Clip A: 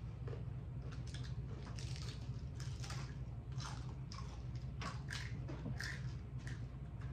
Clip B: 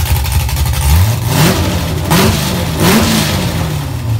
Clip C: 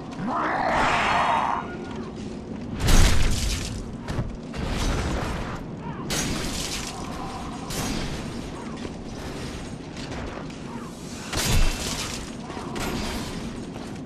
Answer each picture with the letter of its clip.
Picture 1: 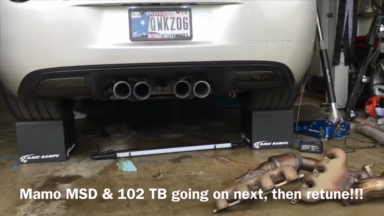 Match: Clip B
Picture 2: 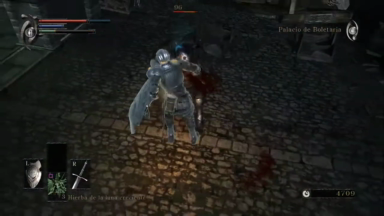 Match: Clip C